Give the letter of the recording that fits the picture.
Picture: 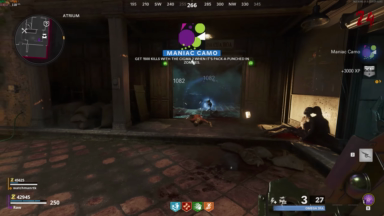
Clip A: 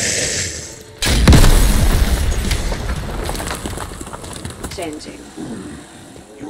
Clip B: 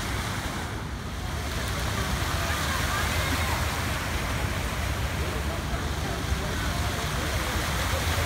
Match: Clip A